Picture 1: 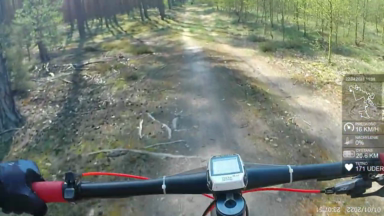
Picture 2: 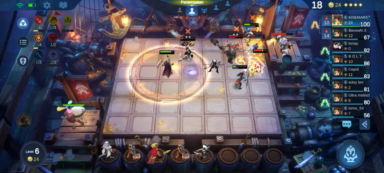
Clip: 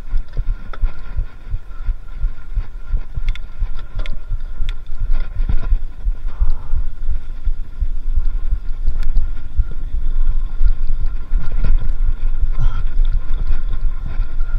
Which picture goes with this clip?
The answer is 1